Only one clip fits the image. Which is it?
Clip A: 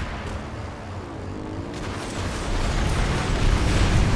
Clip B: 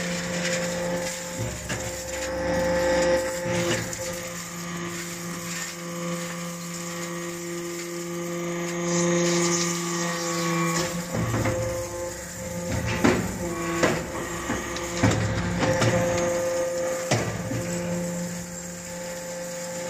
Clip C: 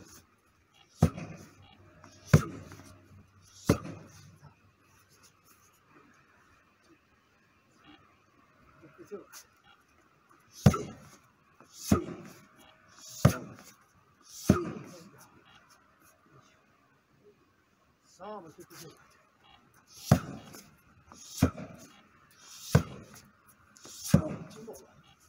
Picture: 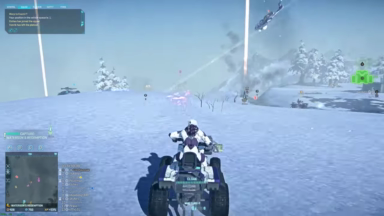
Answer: A